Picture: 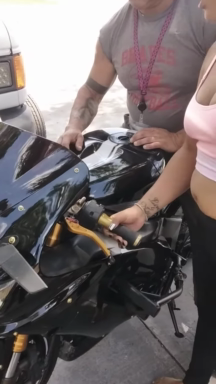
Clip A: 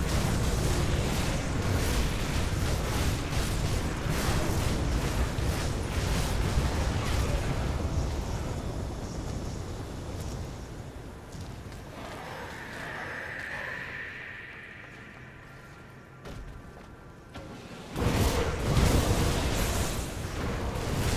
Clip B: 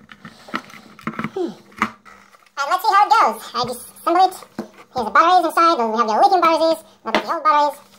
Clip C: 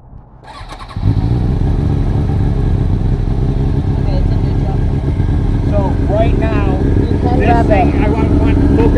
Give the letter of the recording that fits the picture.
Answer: C